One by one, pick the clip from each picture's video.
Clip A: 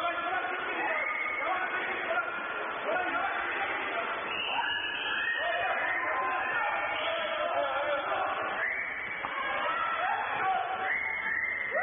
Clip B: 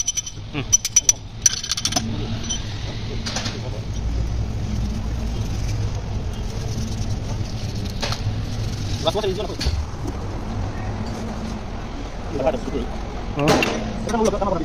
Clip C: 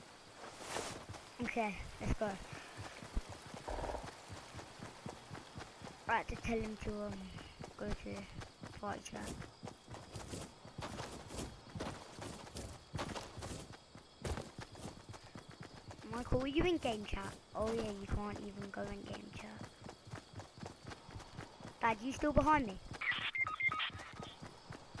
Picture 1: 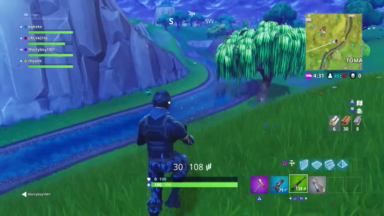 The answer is C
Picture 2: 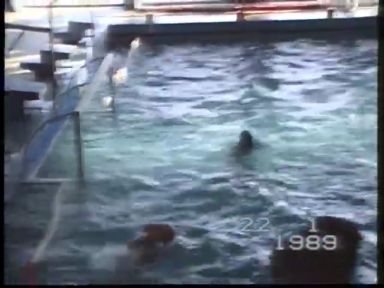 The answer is A